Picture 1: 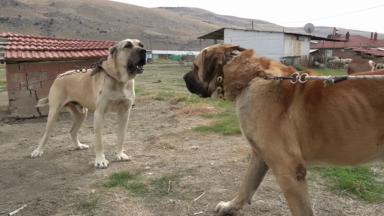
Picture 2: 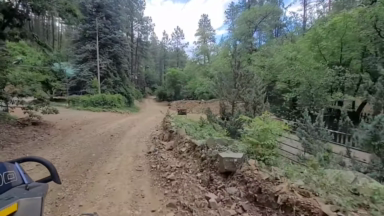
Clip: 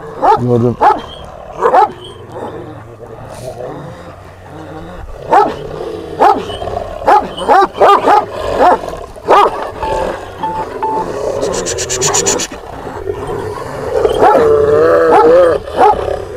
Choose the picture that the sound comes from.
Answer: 1